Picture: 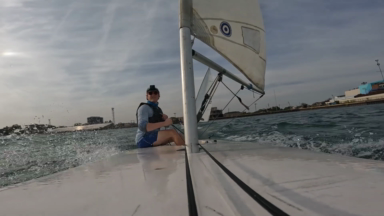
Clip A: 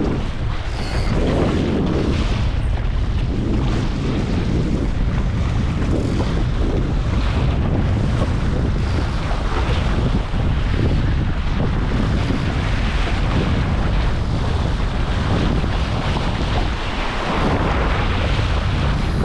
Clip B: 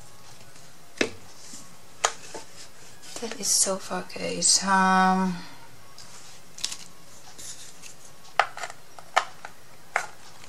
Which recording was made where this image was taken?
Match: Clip A